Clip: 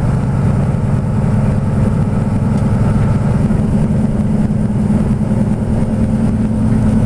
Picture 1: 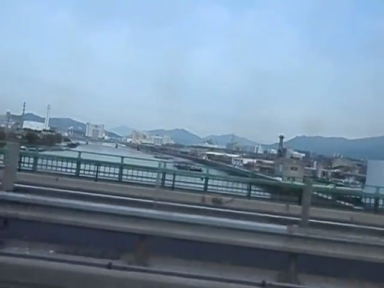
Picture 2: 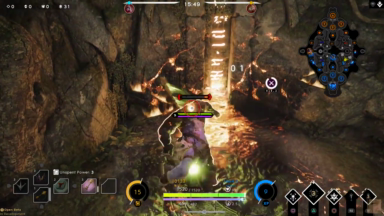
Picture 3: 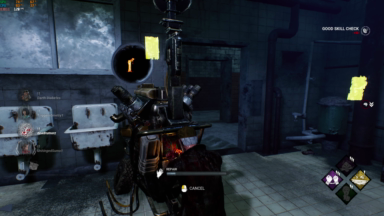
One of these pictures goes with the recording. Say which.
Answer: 1